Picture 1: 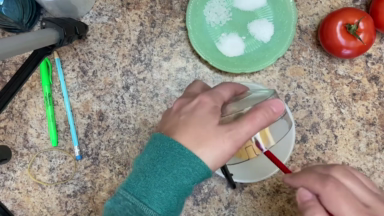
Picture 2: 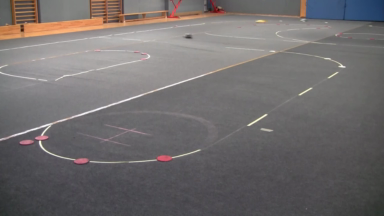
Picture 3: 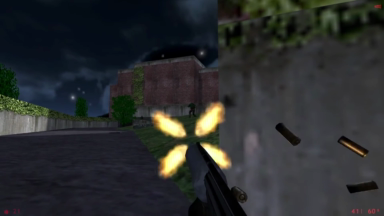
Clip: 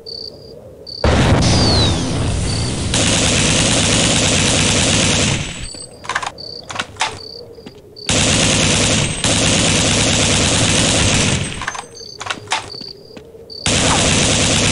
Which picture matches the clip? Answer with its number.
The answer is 3